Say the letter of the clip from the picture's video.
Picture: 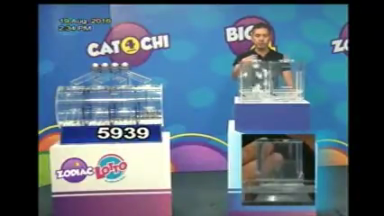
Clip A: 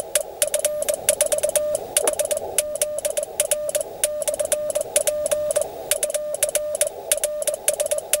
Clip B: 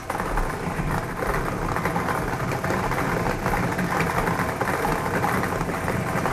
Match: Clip B